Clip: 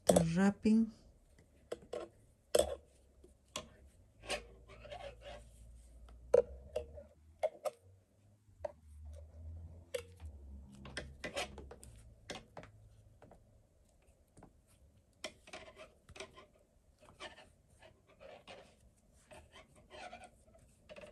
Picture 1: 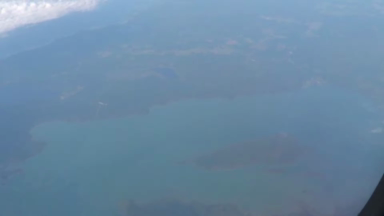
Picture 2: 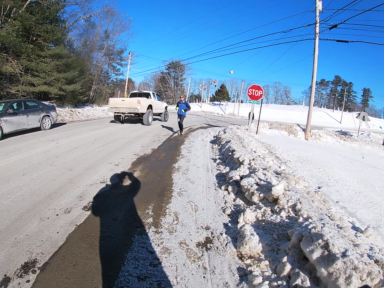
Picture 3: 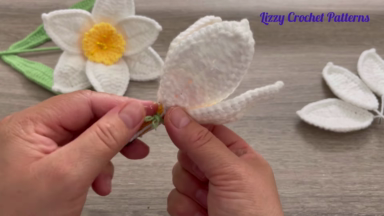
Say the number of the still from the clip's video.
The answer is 3